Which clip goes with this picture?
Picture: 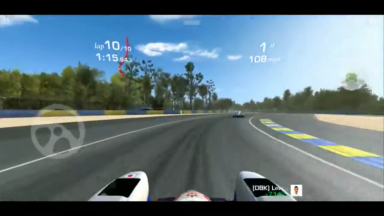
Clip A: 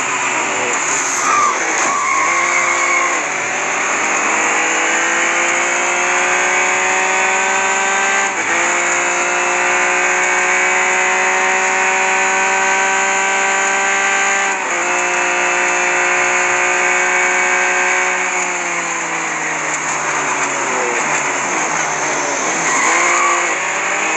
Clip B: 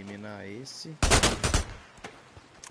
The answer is A